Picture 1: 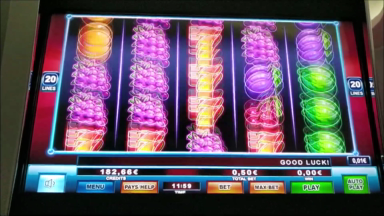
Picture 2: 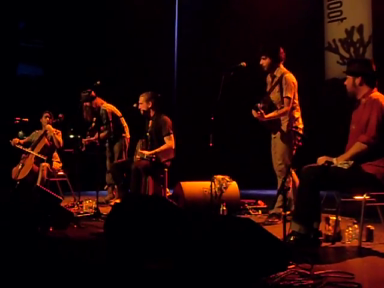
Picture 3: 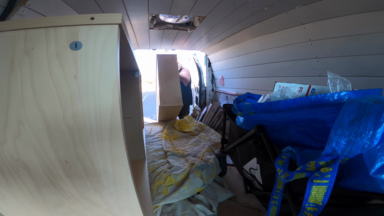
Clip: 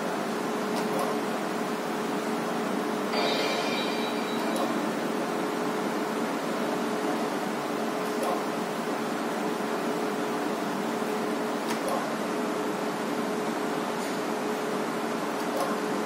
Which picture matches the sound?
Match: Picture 1